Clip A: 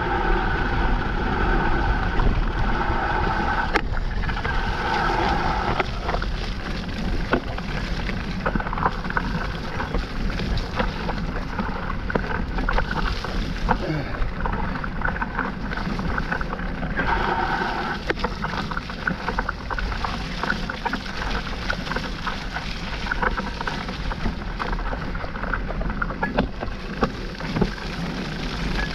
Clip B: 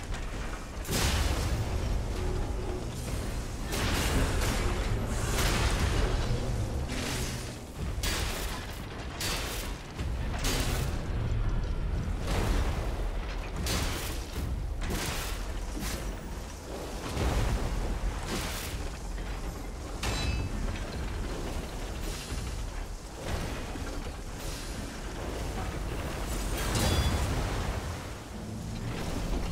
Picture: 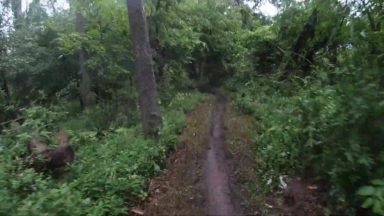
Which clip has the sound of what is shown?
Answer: A